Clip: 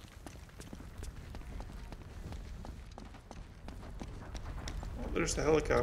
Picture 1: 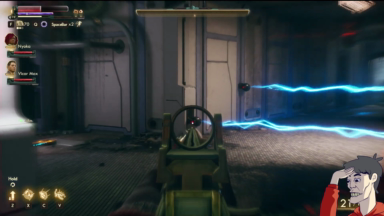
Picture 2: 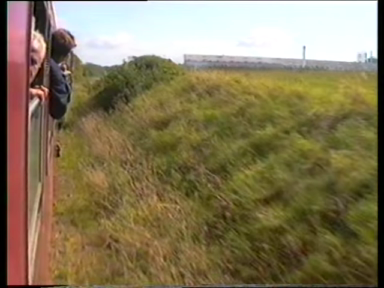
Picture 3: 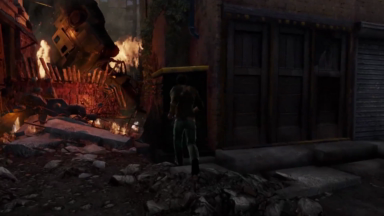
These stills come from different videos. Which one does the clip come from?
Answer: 3